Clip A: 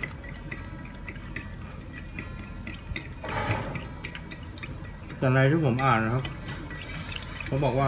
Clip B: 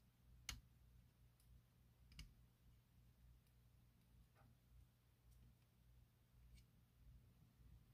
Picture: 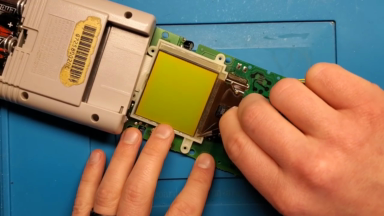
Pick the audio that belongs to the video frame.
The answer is B